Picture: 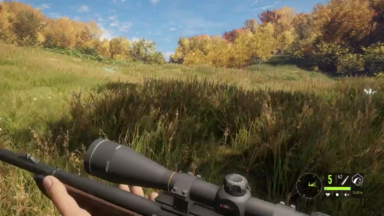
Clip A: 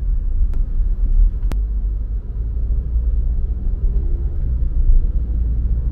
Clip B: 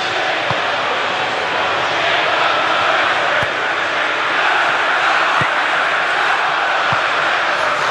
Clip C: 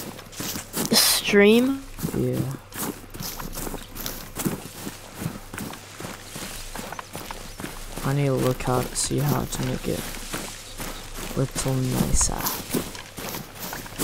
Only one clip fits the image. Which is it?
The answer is C